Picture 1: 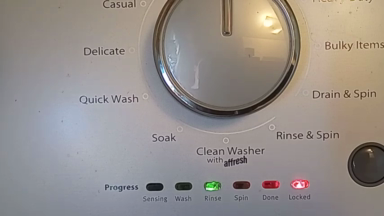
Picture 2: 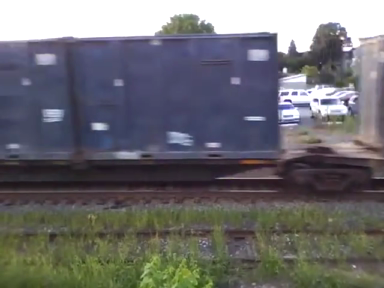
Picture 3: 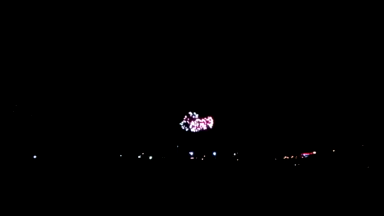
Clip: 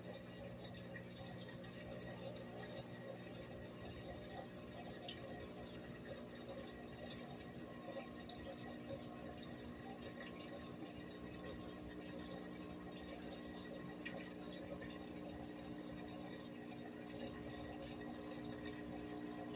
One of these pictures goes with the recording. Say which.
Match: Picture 1